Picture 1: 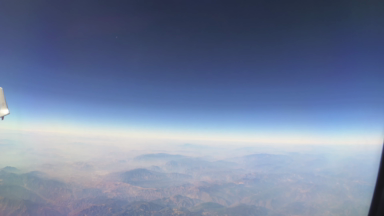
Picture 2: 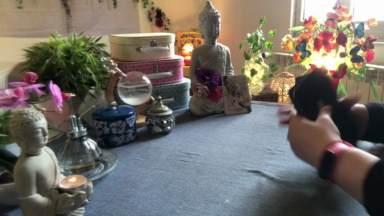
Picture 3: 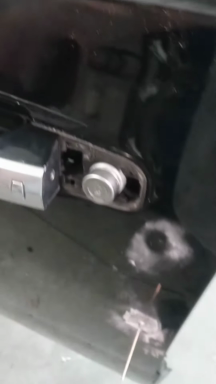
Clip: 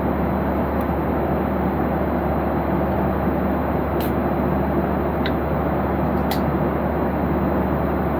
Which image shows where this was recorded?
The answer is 1